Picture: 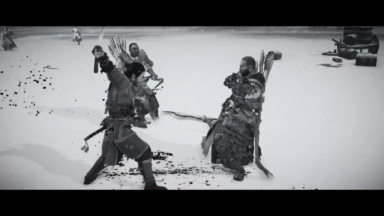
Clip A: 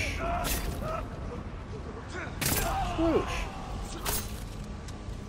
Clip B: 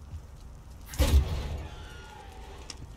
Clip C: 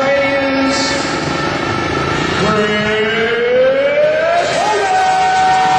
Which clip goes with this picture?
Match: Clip A